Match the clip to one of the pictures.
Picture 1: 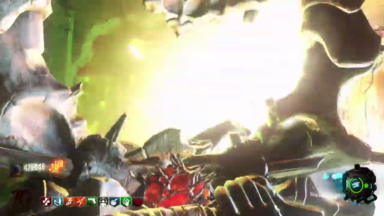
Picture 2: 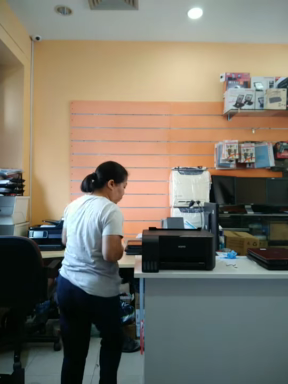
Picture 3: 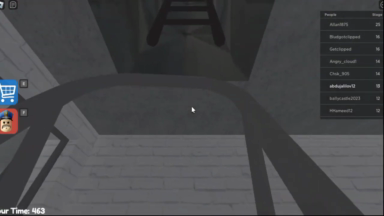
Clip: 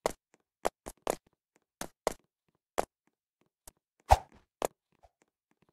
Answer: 3